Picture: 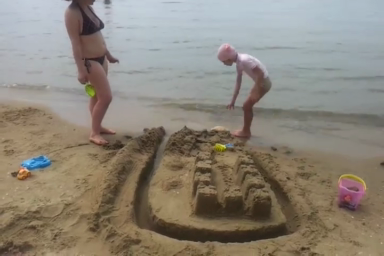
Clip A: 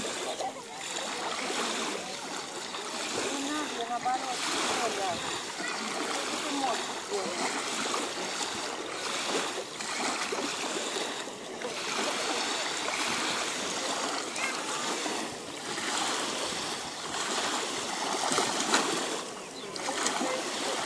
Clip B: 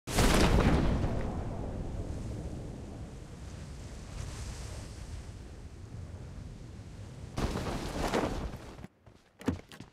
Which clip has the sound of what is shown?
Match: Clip A